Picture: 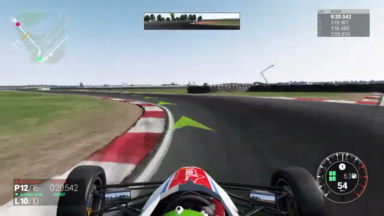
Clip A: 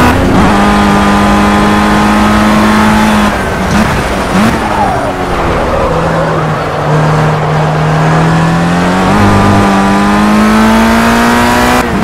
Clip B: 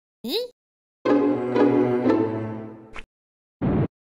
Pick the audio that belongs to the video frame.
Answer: A